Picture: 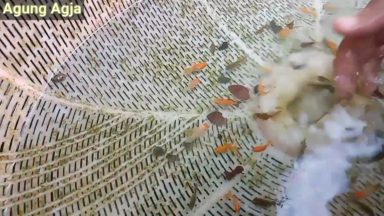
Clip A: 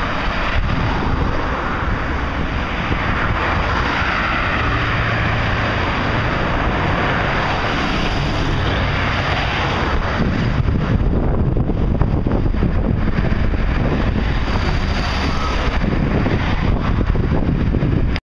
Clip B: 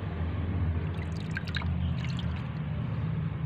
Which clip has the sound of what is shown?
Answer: B